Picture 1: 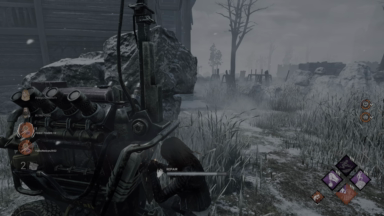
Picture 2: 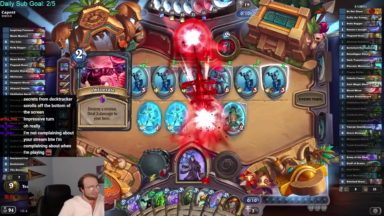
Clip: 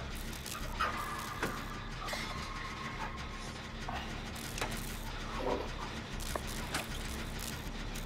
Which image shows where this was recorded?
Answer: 1